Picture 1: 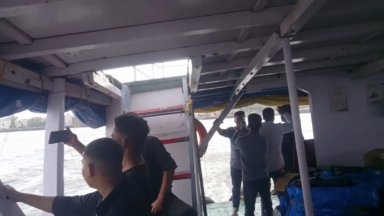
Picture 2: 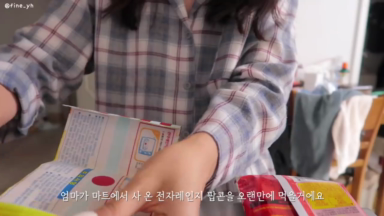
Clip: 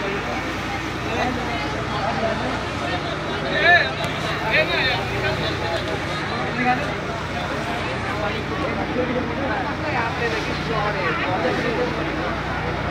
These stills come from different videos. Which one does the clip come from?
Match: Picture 1